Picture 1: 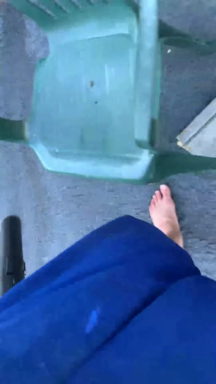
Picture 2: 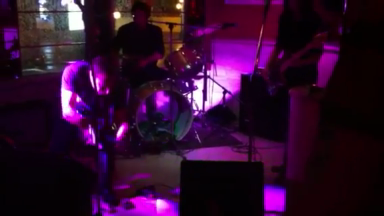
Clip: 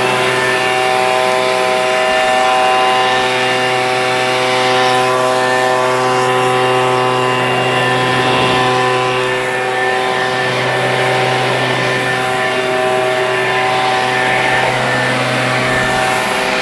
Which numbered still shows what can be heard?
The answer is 1